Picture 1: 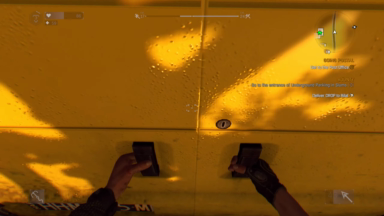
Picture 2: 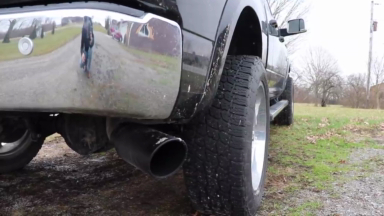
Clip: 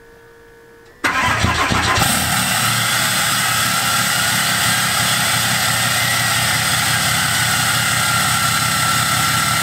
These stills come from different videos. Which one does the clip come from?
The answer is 2